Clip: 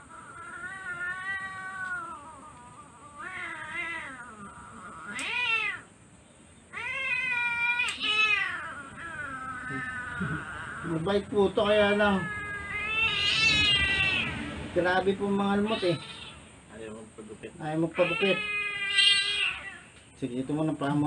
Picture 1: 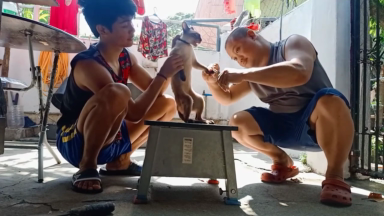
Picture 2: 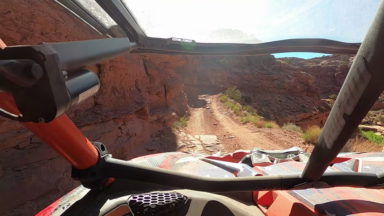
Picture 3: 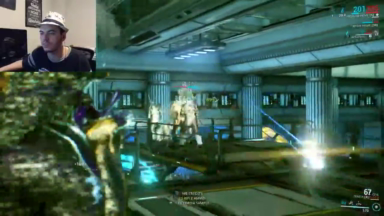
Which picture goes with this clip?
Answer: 1